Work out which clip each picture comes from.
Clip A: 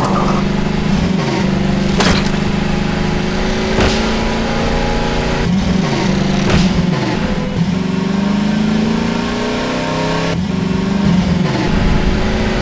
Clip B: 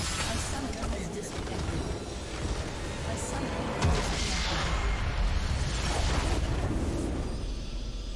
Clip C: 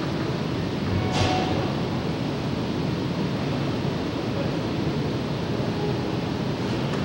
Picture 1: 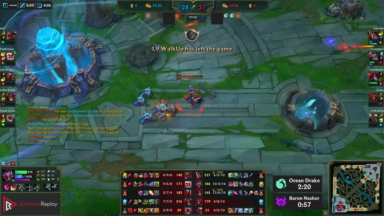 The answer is B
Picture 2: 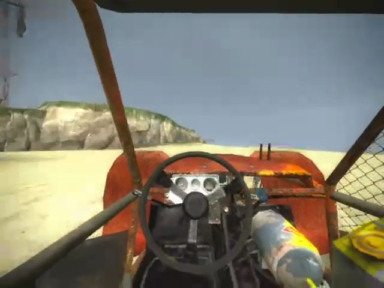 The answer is A